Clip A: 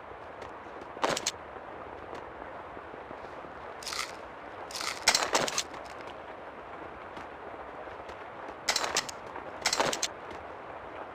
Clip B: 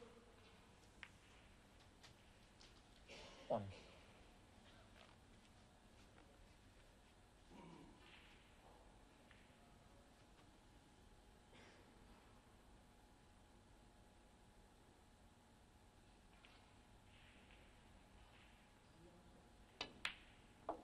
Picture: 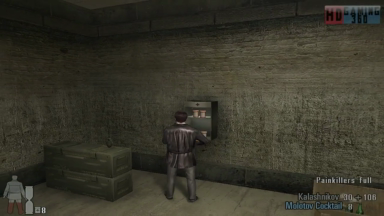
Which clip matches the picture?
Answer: A